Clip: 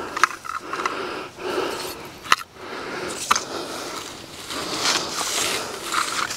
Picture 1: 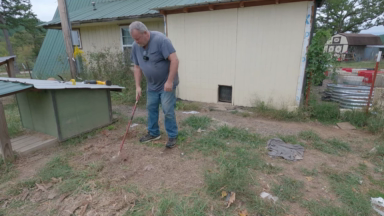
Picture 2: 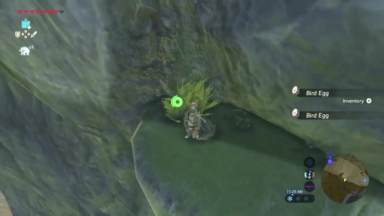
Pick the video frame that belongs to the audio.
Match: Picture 1